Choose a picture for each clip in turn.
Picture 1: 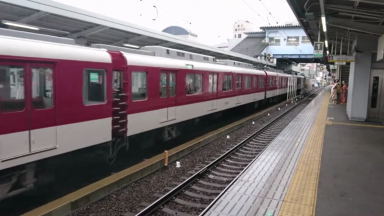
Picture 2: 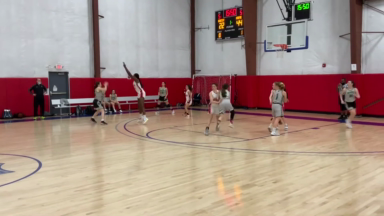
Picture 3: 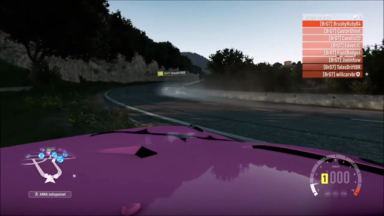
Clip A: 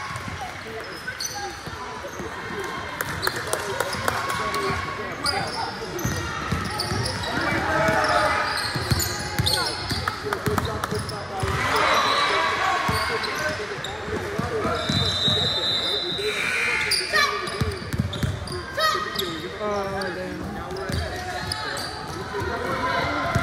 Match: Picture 2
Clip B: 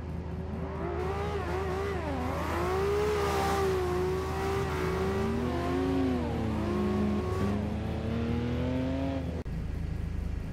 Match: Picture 3